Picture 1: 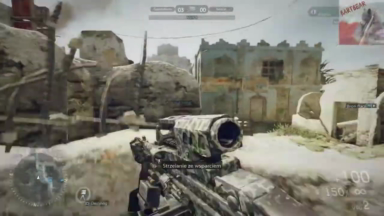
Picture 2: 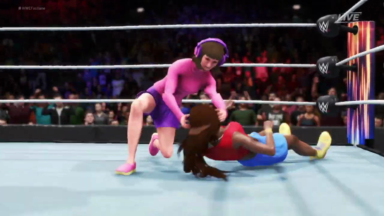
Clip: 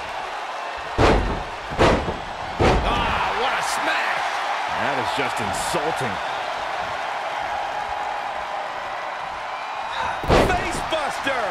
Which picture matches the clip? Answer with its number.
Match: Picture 2